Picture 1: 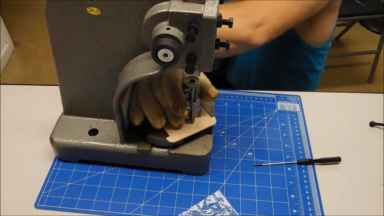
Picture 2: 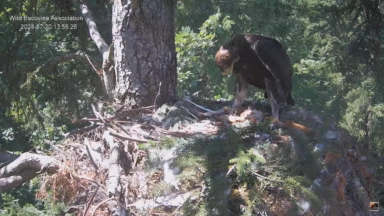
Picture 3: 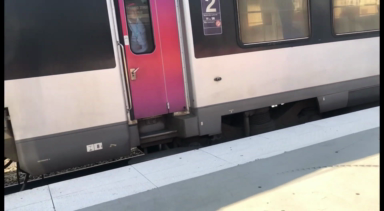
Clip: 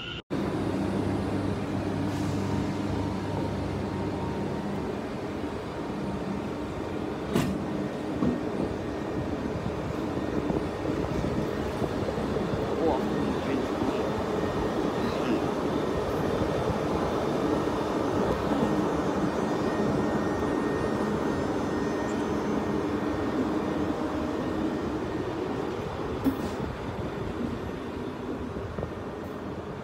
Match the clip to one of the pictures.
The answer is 3